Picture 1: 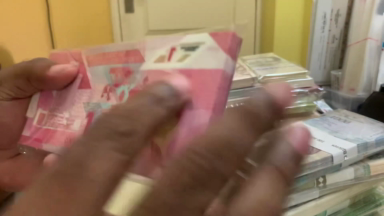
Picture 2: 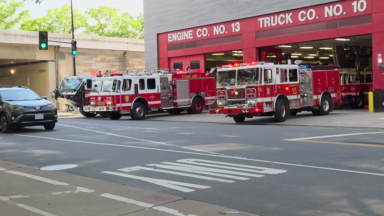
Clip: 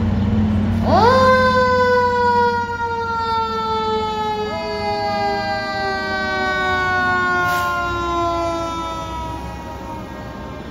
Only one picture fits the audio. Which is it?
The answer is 2